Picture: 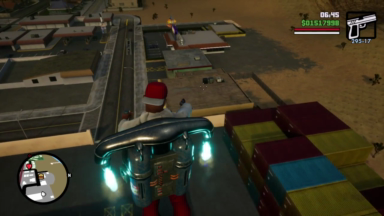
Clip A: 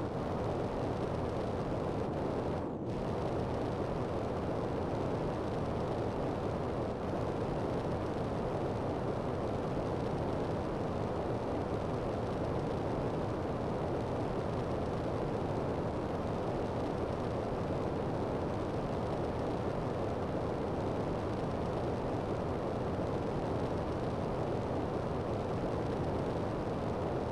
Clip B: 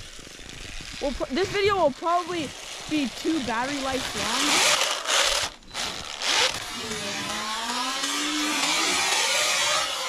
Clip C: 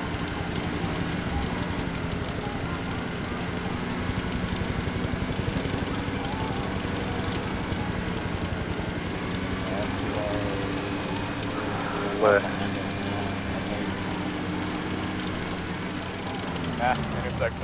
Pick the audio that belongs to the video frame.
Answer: A